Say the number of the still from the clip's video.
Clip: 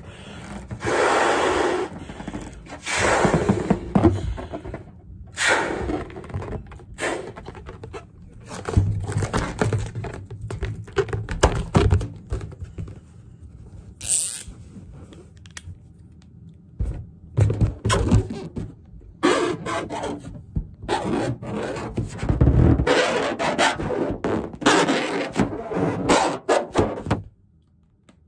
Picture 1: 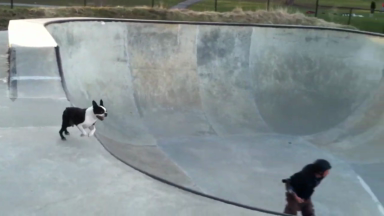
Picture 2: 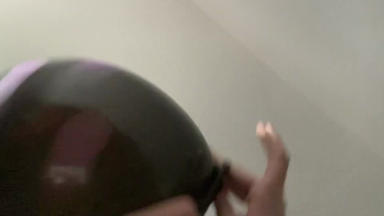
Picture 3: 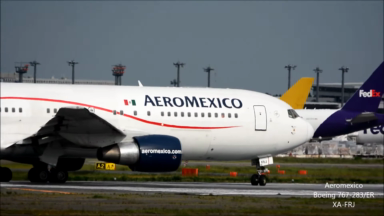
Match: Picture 2